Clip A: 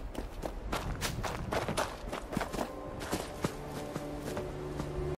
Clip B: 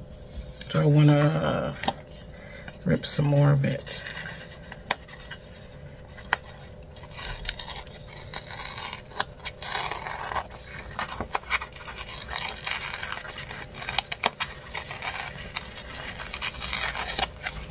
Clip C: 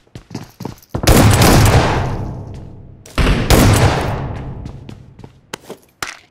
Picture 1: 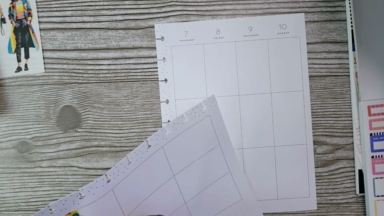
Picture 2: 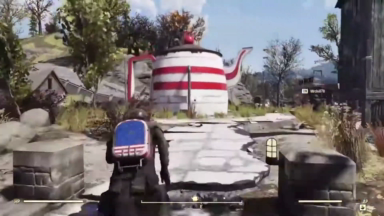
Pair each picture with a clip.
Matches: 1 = B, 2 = A